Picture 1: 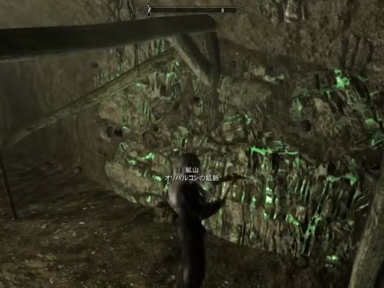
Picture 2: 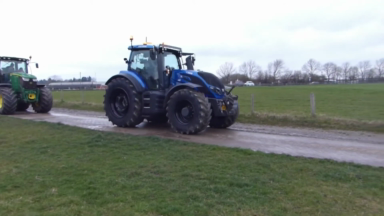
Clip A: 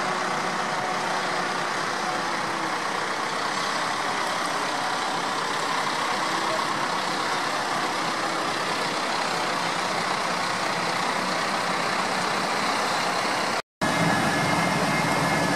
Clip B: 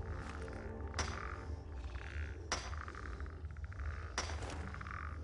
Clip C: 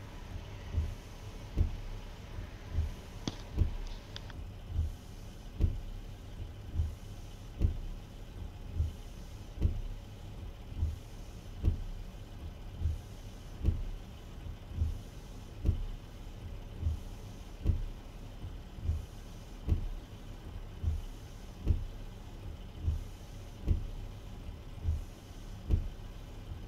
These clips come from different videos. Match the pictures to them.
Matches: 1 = B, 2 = A